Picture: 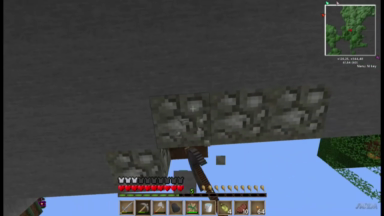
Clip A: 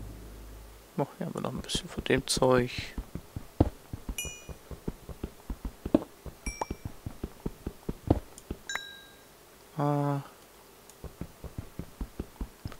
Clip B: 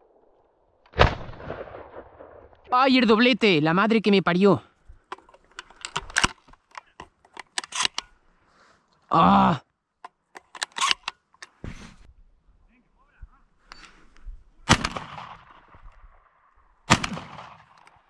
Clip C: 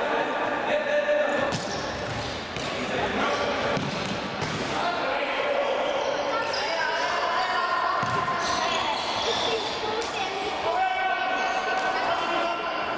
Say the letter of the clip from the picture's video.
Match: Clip A